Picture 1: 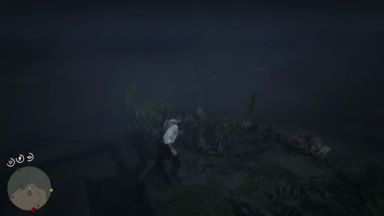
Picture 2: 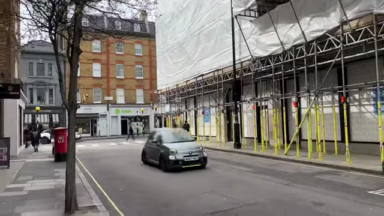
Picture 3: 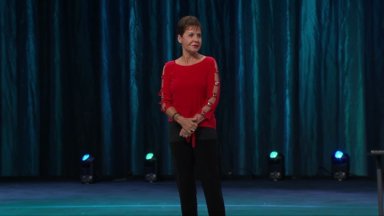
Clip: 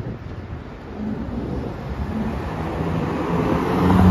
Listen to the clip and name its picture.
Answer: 2